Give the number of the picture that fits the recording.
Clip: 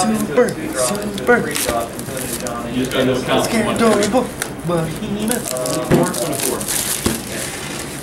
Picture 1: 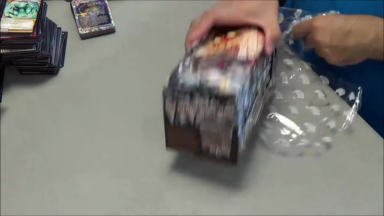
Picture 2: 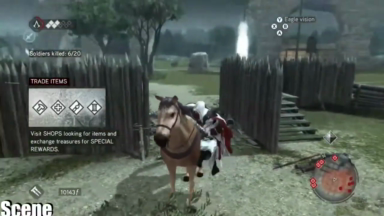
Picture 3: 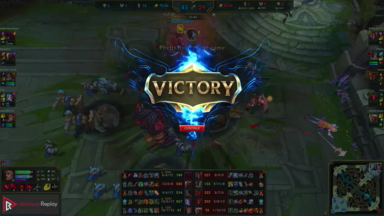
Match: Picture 1